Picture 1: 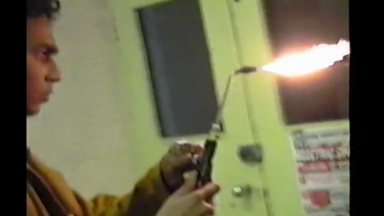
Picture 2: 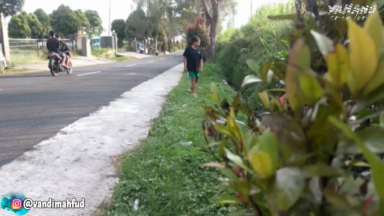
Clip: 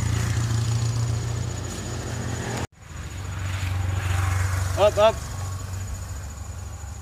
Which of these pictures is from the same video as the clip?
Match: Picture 2